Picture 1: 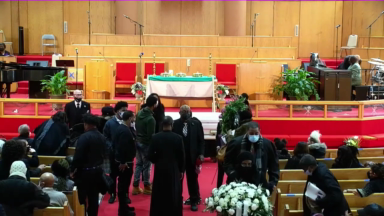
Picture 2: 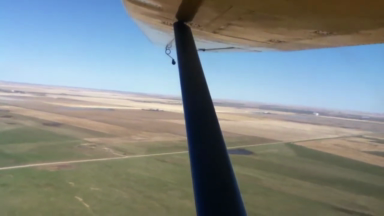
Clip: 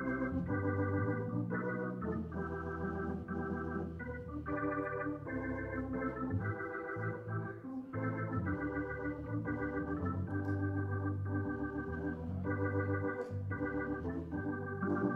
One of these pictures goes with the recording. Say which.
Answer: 1